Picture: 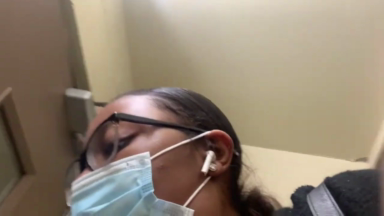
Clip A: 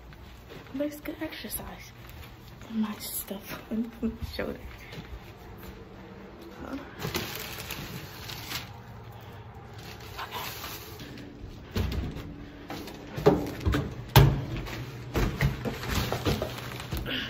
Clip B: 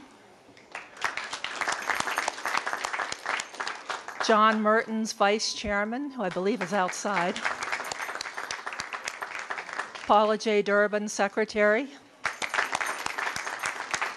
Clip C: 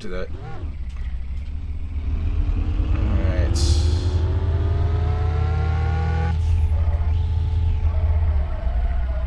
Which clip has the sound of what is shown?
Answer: A